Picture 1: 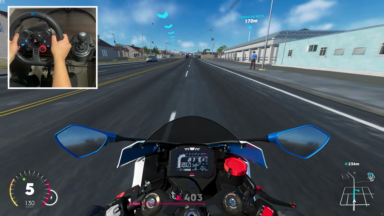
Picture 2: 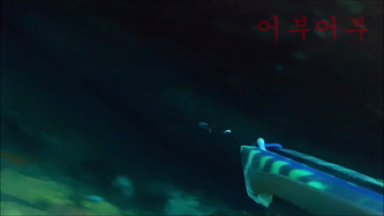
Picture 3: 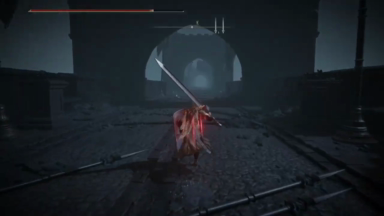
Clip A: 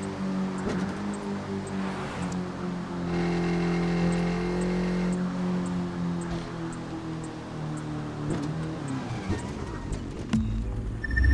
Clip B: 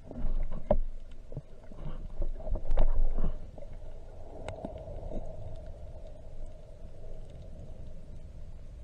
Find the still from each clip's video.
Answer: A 1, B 2